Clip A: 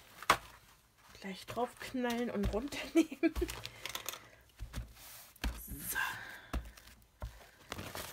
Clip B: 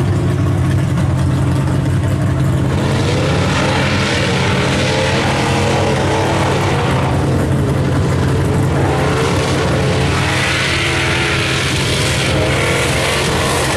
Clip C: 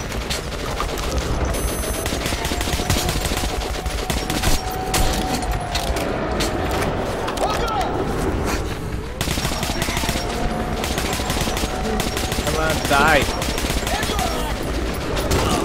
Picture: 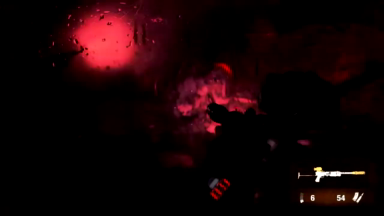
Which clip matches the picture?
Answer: C